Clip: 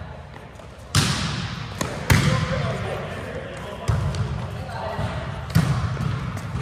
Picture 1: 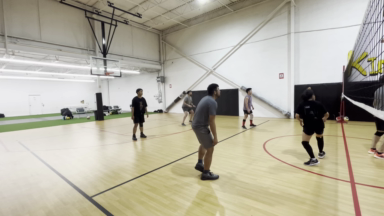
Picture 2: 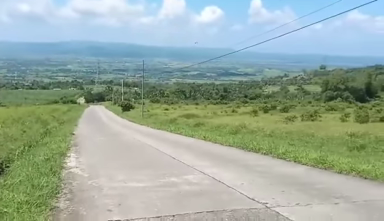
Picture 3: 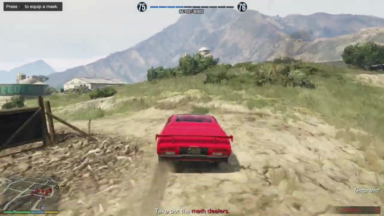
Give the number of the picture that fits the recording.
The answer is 1